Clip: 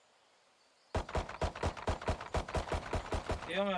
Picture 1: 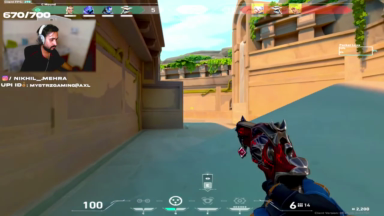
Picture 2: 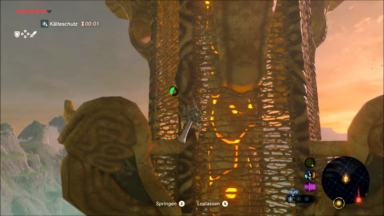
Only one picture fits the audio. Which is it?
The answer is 1